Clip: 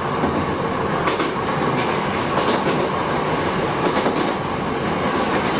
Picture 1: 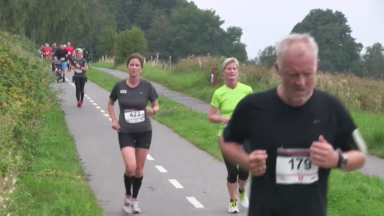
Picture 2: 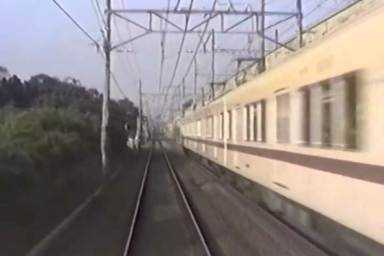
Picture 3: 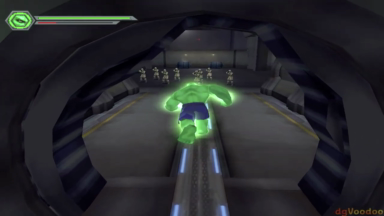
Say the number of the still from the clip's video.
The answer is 2